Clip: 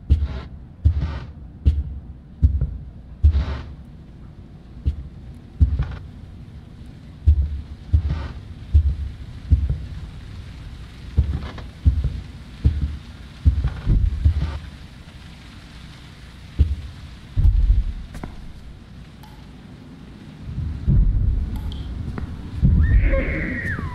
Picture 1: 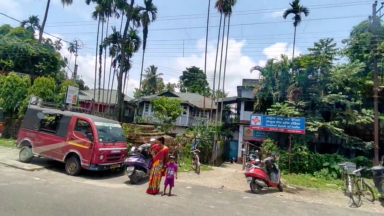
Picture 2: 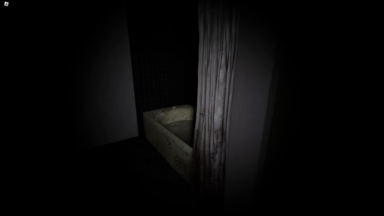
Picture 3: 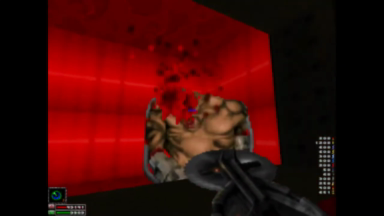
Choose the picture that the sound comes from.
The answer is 2